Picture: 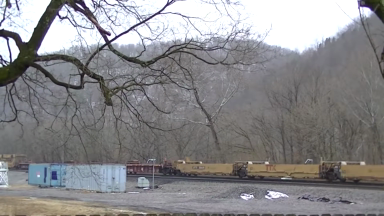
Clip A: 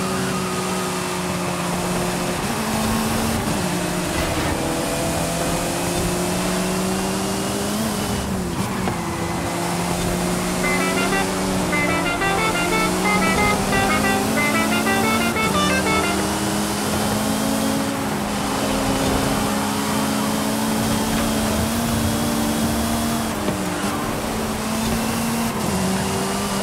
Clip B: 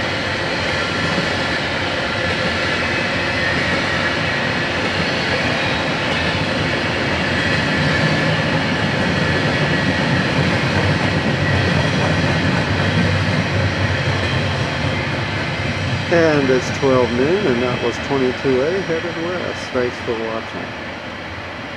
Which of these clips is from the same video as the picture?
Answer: B